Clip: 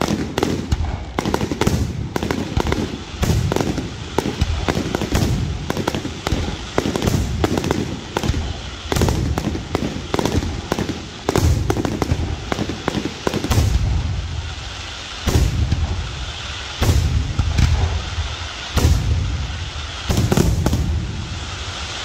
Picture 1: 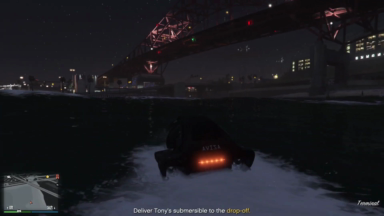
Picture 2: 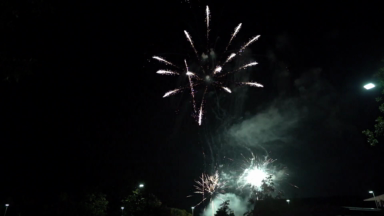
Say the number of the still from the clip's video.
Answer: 2